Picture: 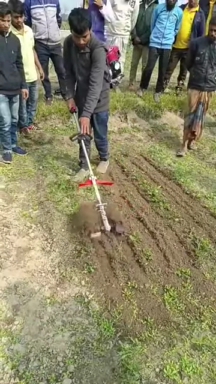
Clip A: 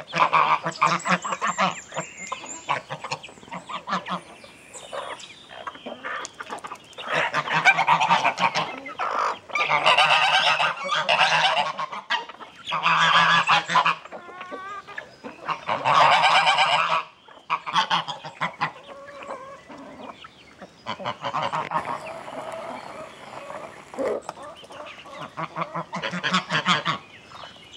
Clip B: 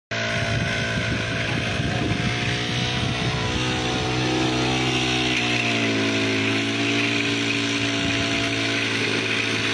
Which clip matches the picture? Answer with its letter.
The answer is B